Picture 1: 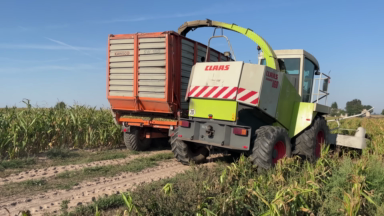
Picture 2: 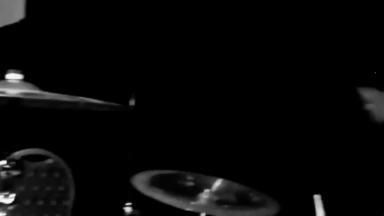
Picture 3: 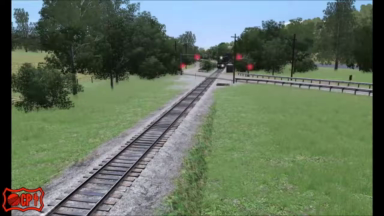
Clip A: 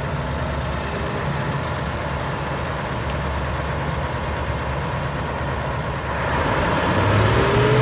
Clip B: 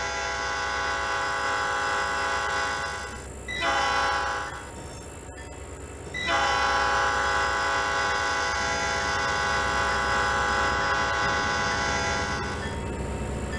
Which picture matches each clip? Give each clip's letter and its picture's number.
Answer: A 1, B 3